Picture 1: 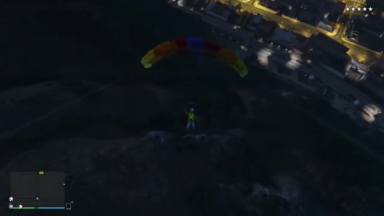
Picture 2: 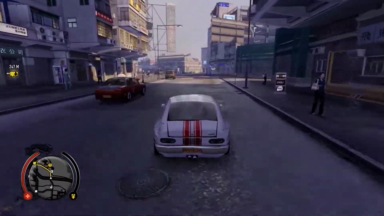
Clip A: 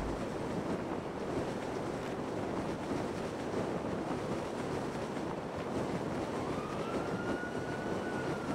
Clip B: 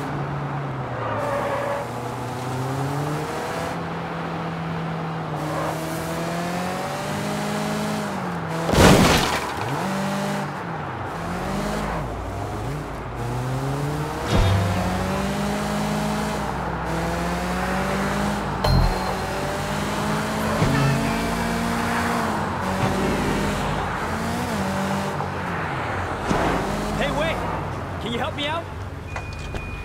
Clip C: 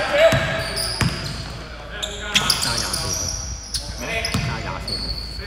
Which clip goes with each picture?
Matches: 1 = A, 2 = B